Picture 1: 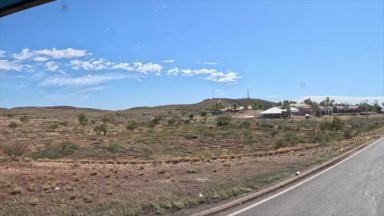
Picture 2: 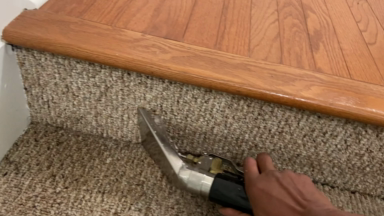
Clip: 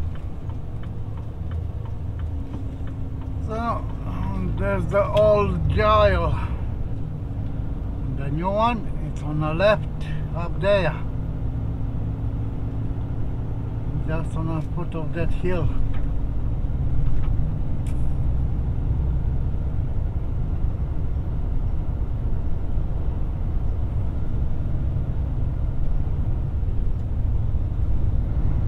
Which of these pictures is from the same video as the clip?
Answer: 1